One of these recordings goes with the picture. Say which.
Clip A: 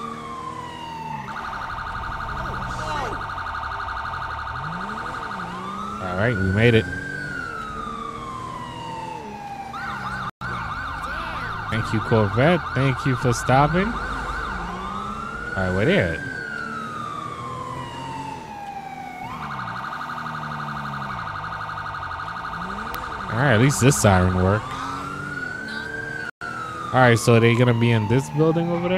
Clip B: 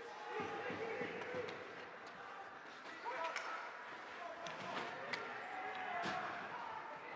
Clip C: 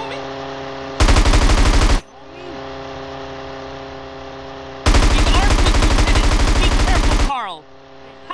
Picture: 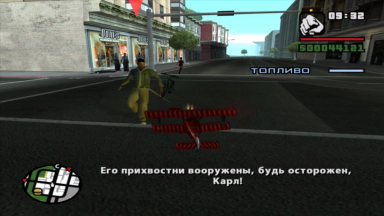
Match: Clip C